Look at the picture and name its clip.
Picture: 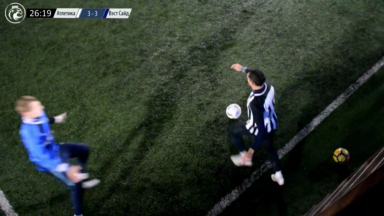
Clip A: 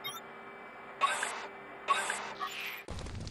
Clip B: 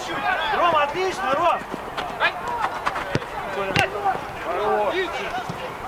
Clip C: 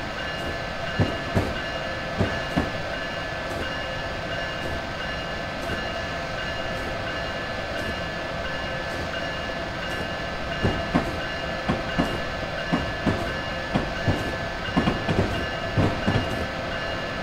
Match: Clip B